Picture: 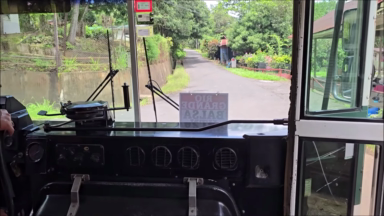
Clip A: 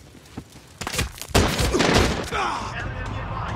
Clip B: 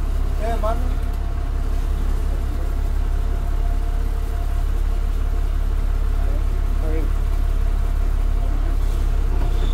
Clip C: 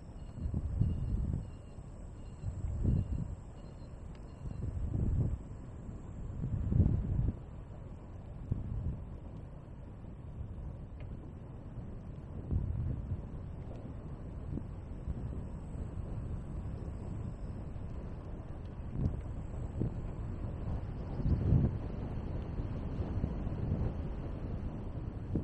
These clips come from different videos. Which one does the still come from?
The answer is B